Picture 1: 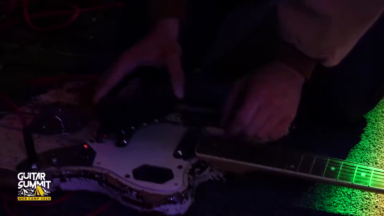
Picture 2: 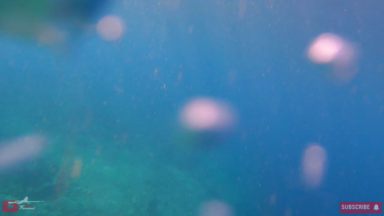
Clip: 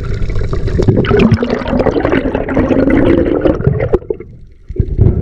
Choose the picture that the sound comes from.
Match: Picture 2